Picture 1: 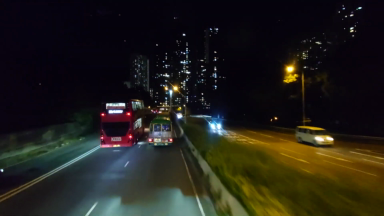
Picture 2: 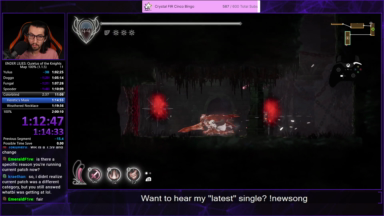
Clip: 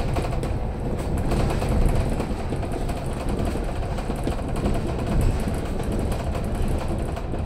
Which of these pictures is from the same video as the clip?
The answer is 1